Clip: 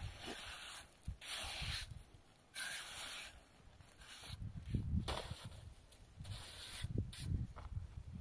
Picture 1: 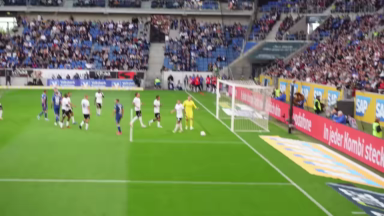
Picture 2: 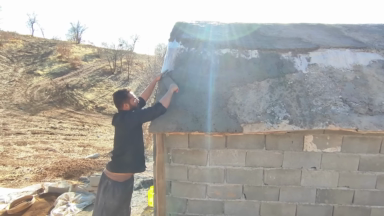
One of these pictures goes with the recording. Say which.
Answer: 2